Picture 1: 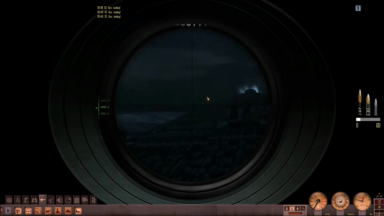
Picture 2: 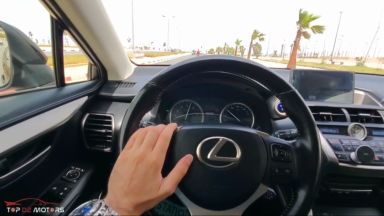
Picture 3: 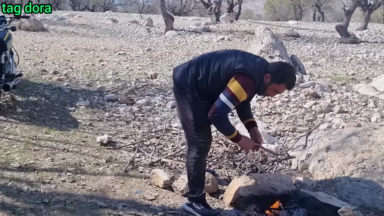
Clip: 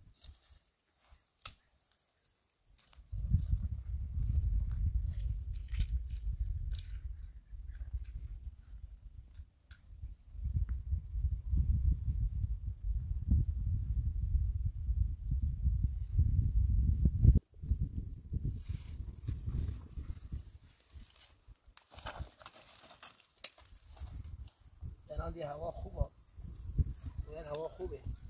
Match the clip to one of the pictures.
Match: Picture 3